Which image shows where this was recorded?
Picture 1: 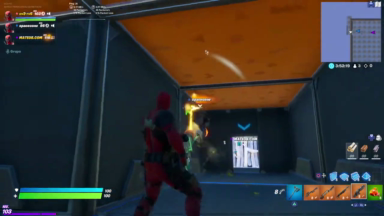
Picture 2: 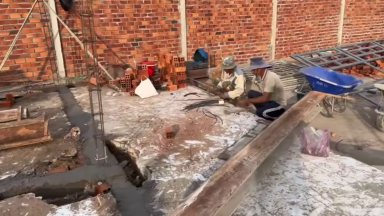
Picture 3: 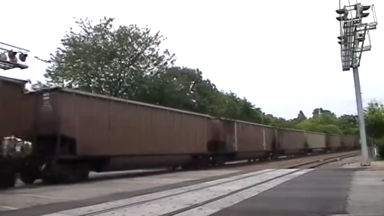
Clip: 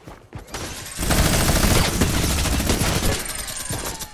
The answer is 1